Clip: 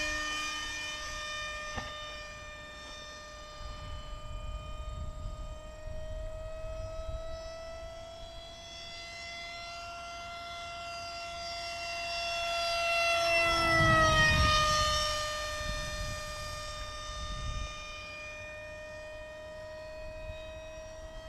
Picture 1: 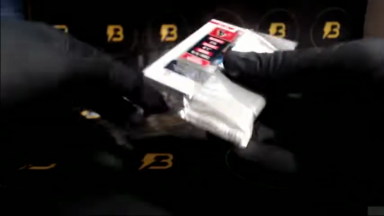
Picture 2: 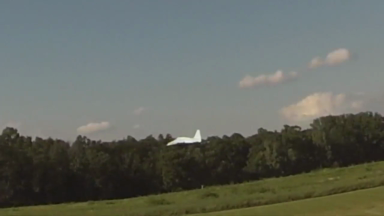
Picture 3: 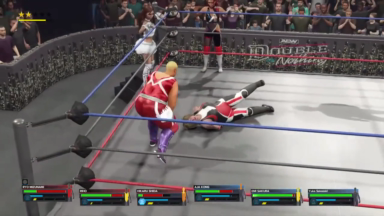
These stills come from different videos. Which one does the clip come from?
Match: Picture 2